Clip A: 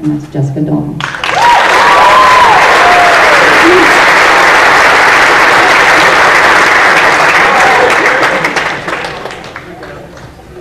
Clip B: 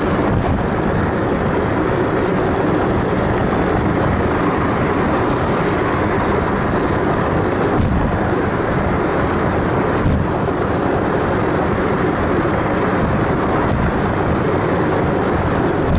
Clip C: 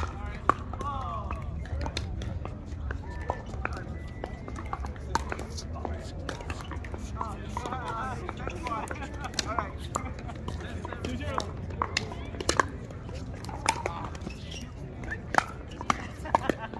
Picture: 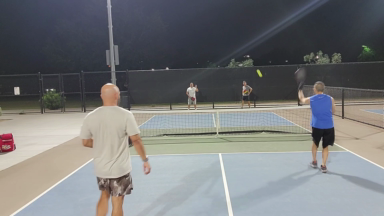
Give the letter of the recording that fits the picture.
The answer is C